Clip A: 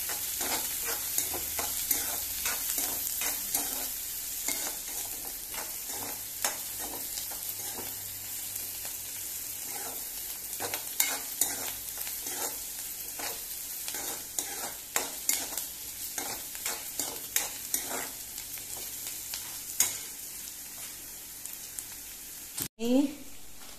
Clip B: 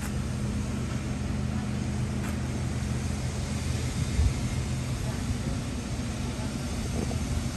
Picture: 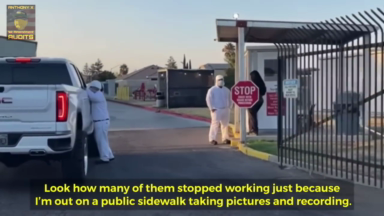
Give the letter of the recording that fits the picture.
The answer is B